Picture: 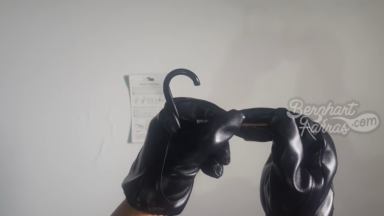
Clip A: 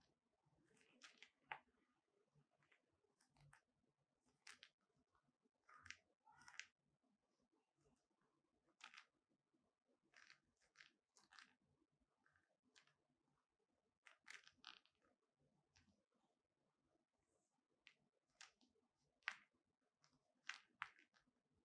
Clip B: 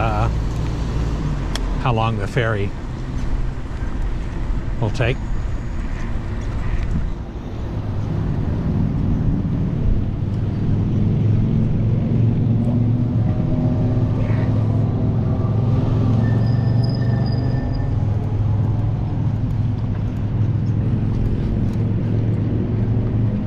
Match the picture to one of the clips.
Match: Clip A